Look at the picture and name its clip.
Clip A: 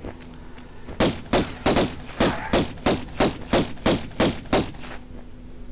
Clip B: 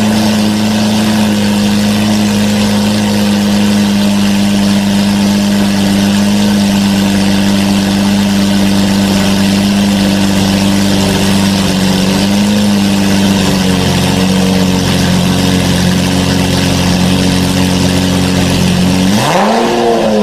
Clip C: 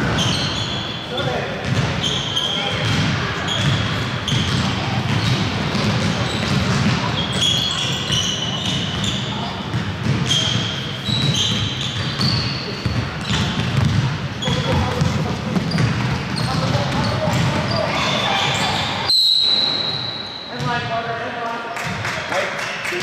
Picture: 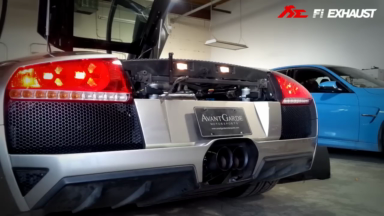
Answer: B